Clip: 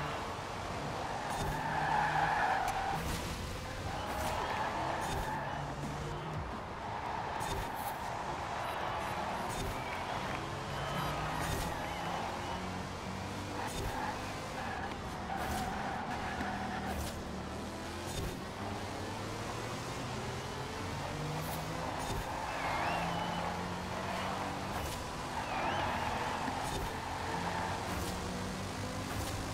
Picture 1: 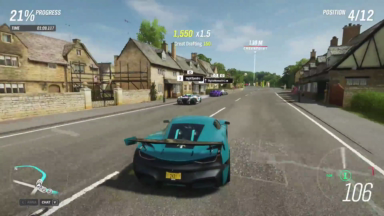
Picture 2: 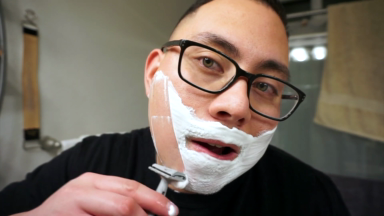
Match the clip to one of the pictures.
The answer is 1